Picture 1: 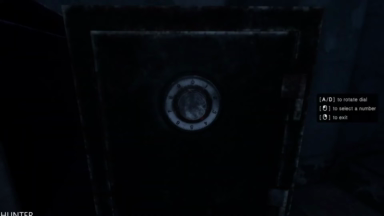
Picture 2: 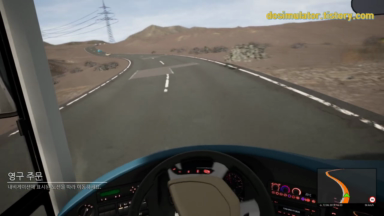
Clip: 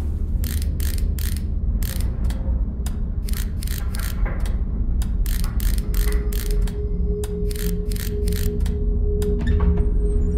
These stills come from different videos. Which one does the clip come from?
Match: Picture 1